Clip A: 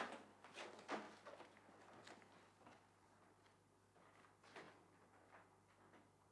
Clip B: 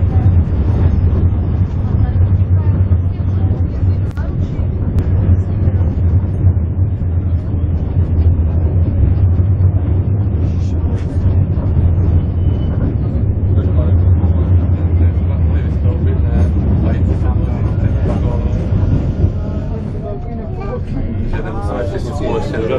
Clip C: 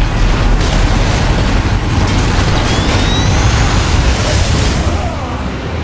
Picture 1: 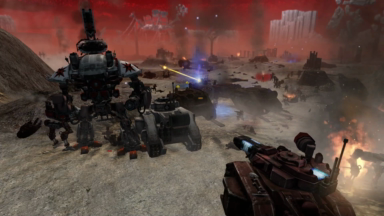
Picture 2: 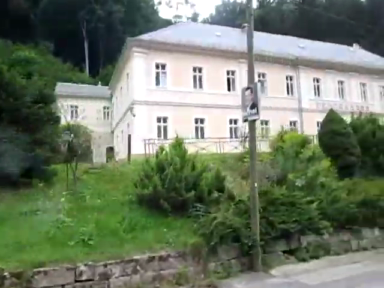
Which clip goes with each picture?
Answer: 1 C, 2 B